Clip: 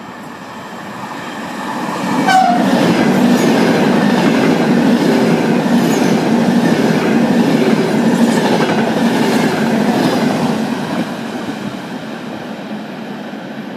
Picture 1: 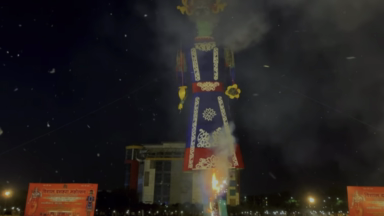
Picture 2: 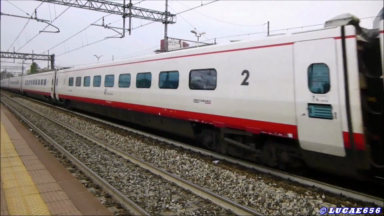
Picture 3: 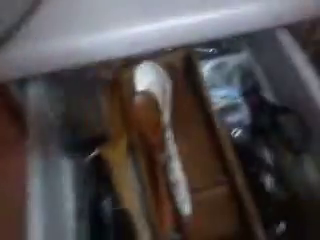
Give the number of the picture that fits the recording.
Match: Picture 2